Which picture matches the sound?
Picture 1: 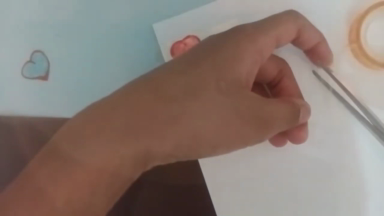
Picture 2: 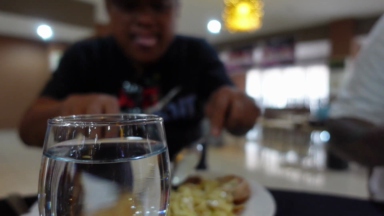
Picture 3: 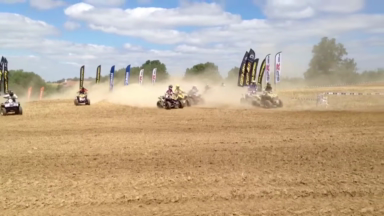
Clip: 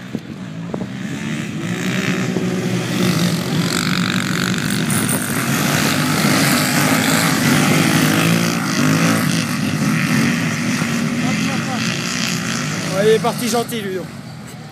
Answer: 3